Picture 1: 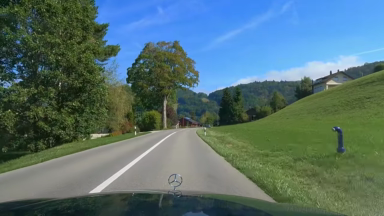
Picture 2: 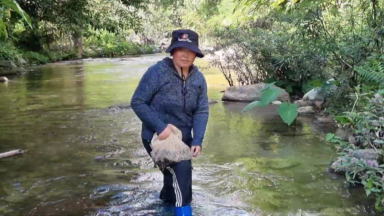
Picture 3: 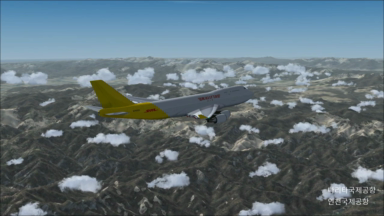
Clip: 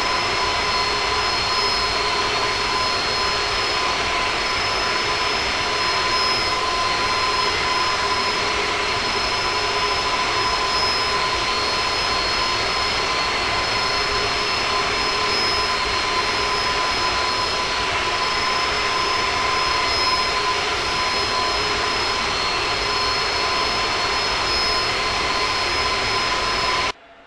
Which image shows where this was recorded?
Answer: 3